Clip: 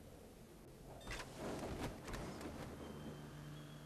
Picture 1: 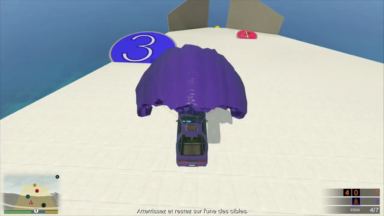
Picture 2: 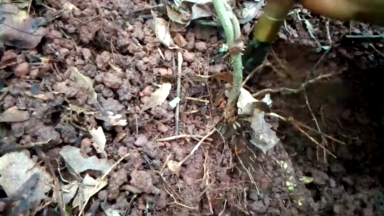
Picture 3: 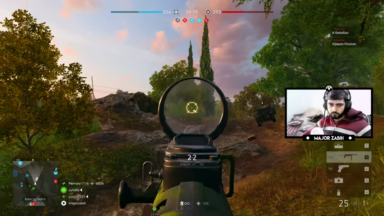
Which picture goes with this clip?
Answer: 1